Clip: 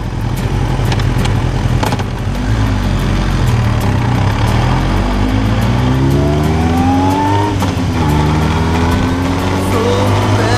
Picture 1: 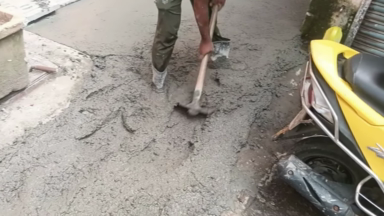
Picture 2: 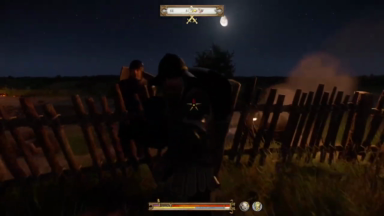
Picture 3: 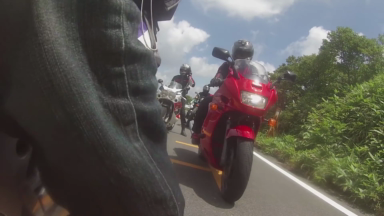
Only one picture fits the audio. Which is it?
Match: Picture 3